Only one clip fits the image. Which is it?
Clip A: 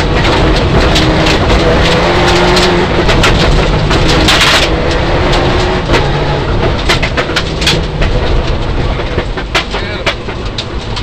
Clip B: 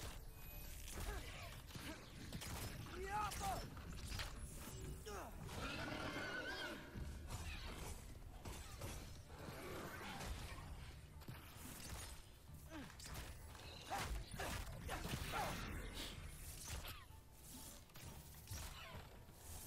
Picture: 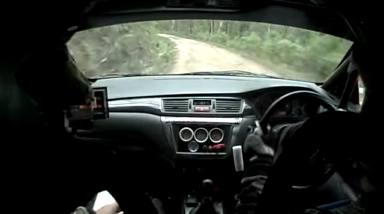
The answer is A